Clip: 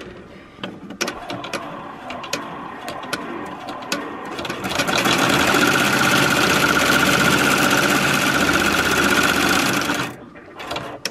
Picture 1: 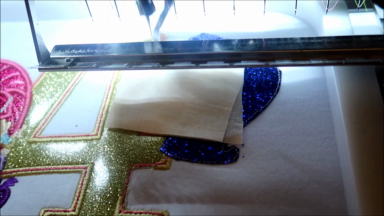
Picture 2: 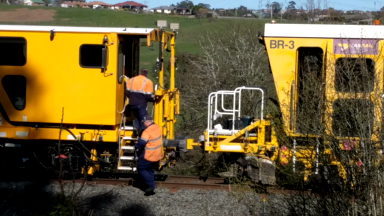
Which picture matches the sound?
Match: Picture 1